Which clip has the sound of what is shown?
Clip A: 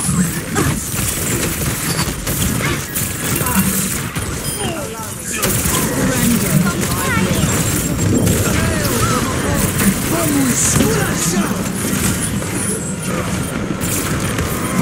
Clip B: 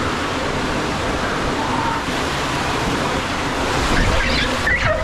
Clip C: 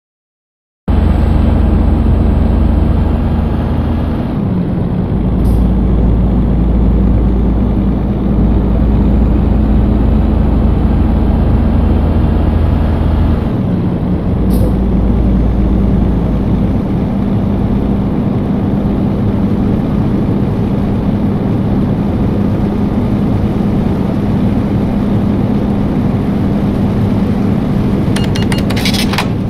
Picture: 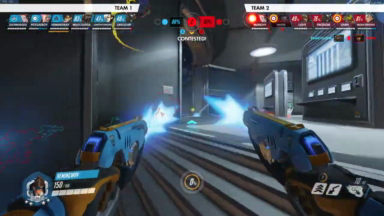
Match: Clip A